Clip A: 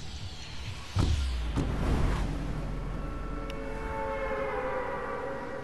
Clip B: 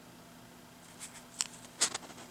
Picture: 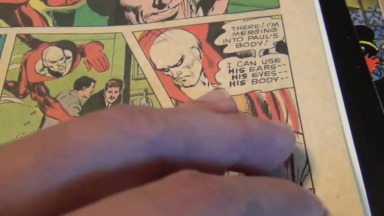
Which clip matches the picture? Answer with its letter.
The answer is B